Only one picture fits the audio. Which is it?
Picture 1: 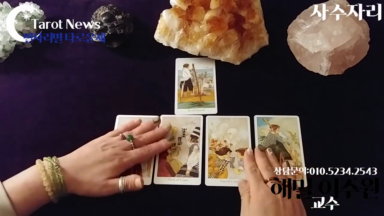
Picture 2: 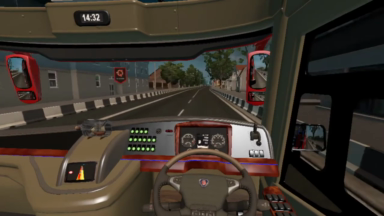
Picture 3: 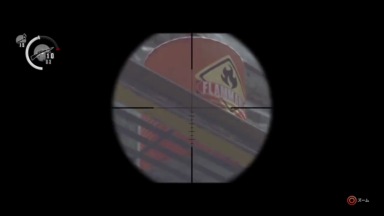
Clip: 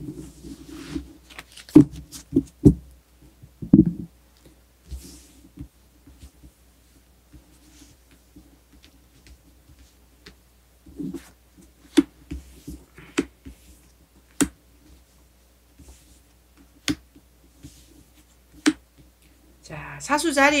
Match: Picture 1